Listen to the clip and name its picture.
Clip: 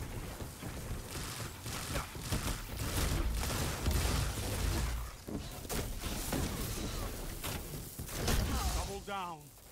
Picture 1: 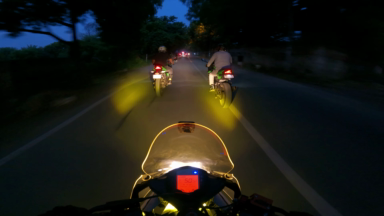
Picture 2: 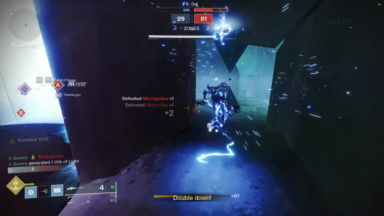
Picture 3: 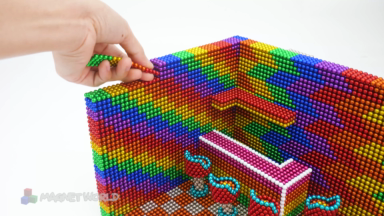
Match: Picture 2